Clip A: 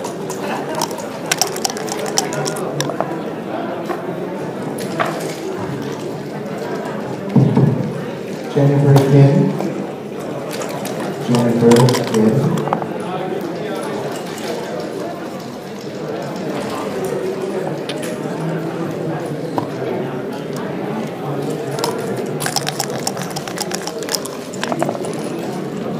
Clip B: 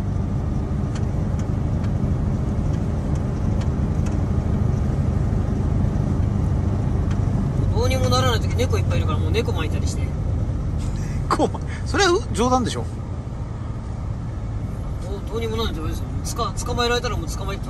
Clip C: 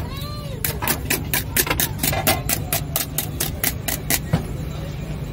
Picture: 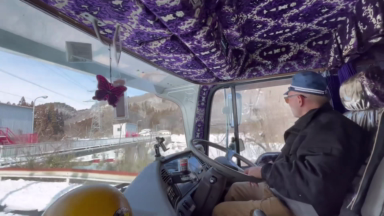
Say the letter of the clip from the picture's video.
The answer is B